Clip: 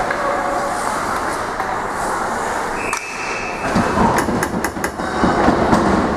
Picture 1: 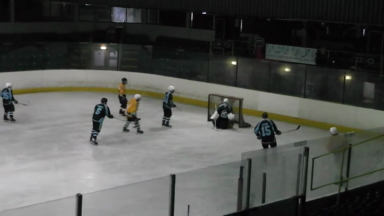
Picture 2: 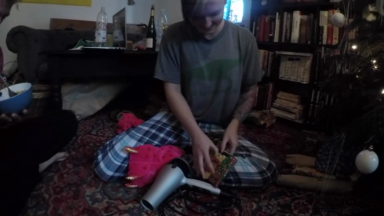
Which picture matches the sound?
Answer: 1